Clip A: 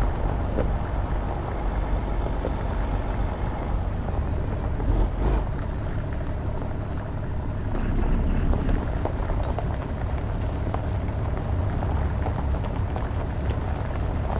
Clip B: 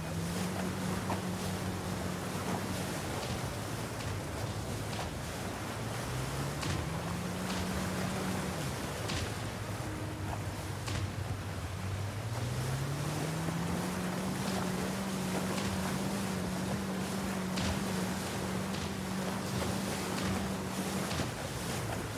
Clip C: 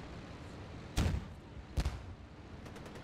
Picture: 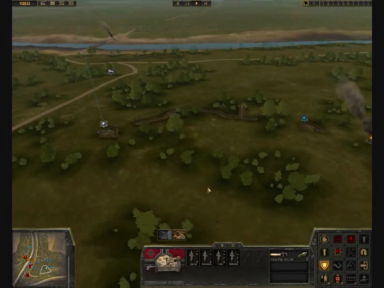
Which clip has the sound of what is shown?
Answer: C